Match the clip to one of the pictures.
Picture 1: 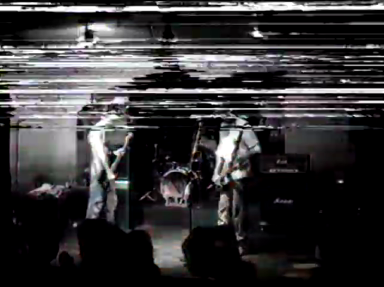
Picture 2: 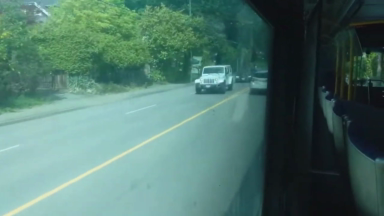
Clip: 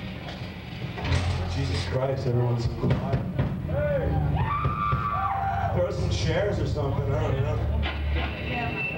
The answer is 1